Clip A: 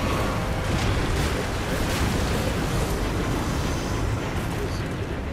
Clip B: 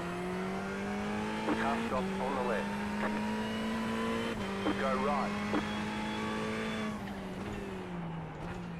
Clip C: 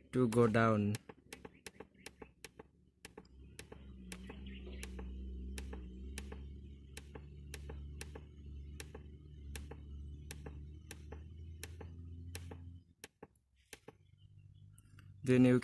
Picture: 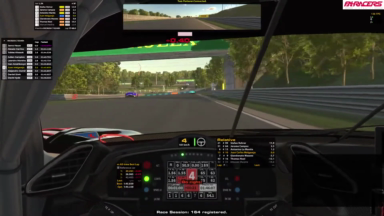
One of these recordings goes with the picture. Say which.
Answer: B